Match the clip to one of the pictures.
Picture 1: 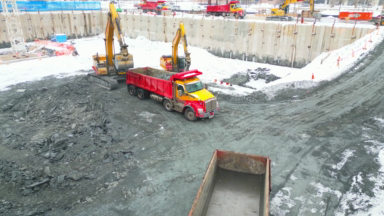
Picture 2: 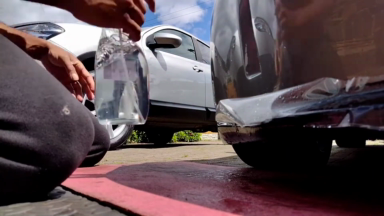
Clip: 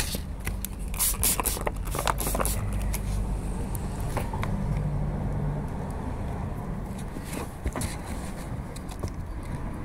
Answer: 2